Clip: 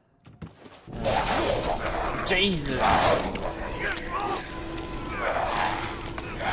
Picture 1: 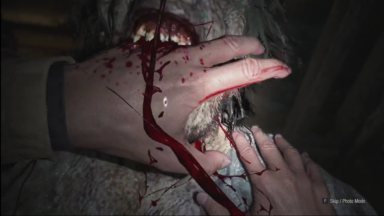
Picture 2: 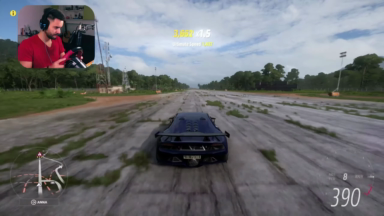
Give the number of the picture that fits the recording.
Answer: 1